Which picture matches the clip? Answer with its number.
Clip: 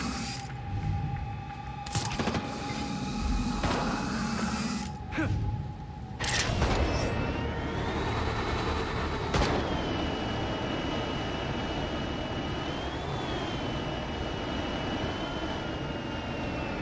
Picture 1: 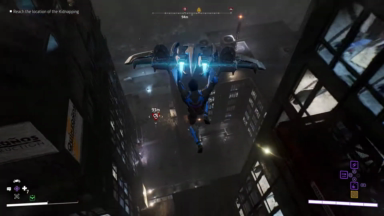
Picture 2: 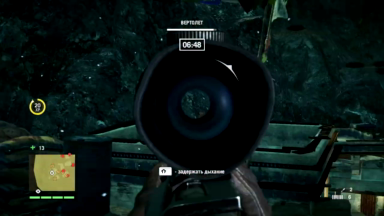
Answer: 1